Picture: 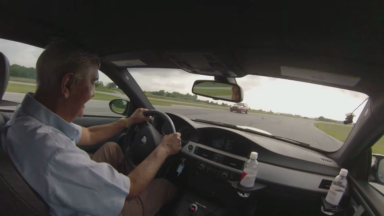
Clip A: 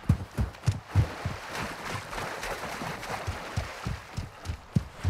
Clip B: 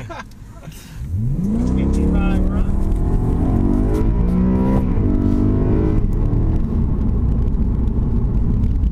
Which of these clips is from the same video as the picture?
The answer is B